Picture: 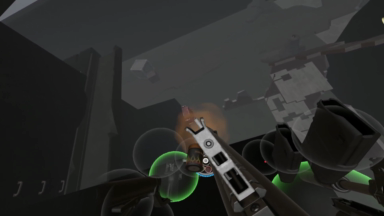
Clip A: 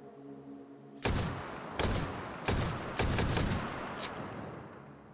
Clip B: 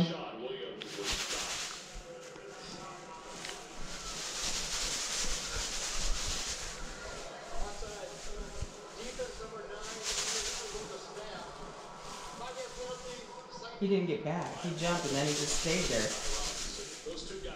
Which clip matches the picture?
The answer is A